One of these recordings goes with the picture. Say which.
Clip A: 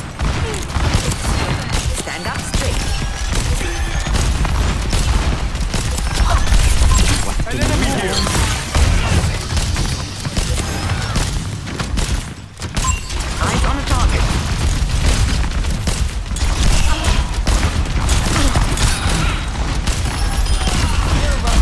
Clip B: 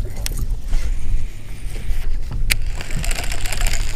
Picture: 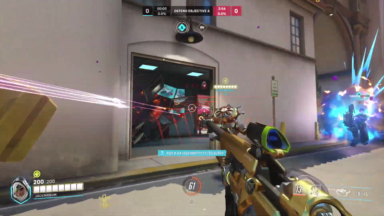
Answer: A